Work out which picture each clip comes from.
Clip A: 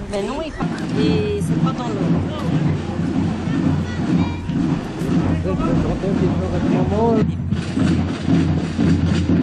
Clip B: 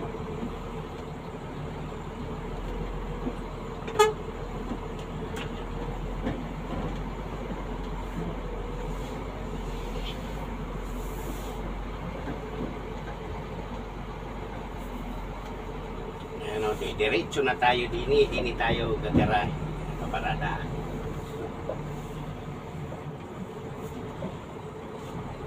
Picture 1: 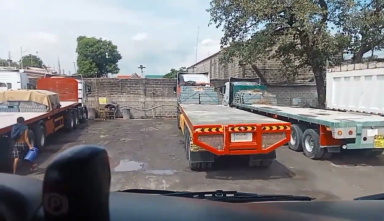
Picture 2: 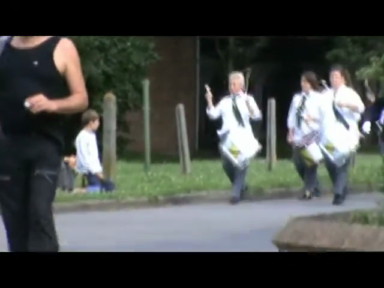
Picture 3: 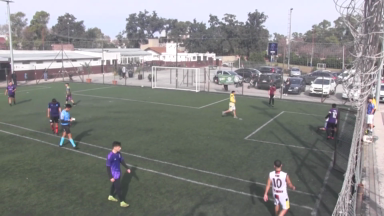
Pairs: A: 2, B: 1